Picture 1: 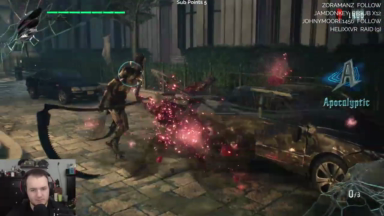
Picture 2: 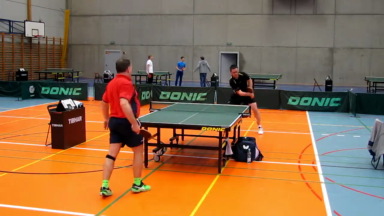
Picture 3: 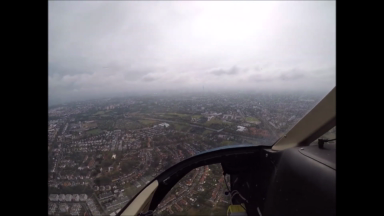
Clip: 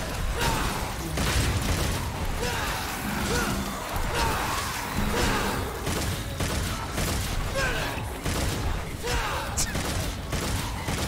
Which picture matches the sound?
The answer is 1